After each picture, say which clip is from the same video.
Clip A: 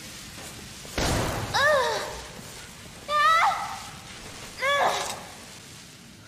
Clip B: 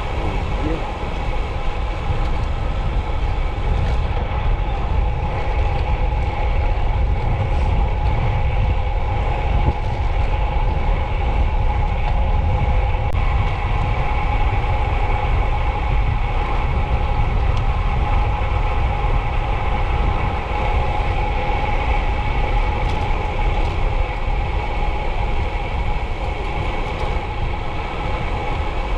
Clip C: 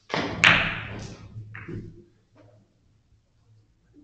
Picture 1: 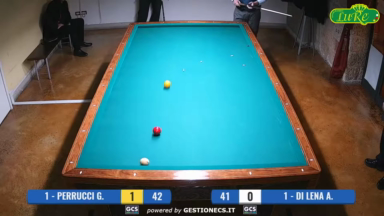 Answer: C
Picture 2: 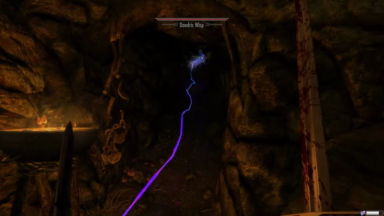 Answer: A